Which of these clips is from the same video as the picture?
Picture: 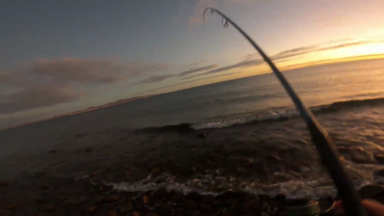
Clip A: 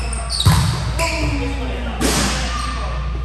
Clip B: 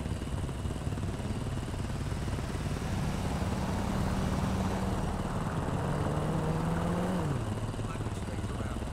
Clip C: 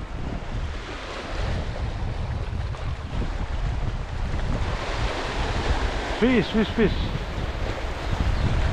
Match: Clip C